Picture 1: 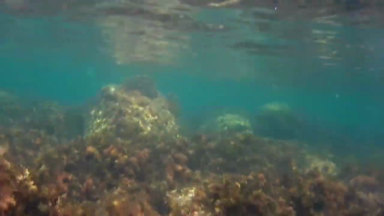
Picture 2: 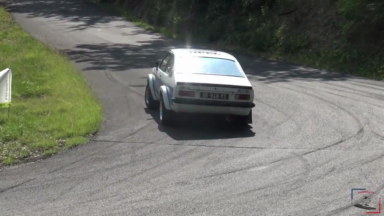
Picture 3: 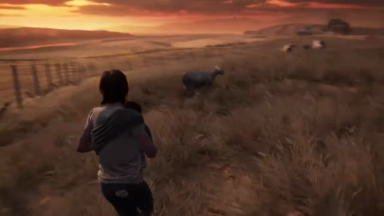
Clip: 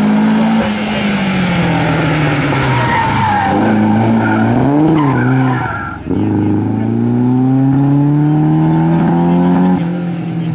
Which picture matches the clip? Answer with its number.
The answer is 2